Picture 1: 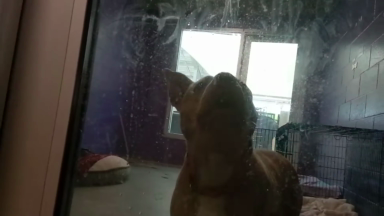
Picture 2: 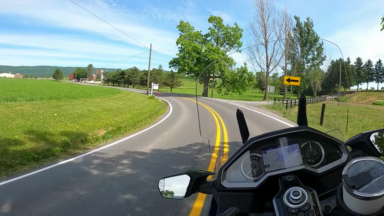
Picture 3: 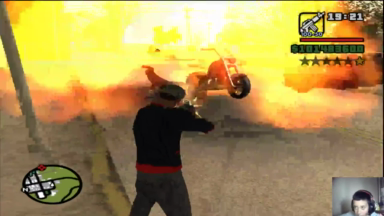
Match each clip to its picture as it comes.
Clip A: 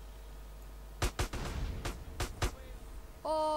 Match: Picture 3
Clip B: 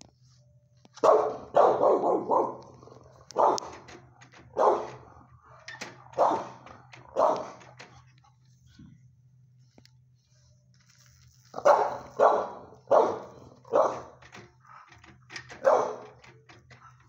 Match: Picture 1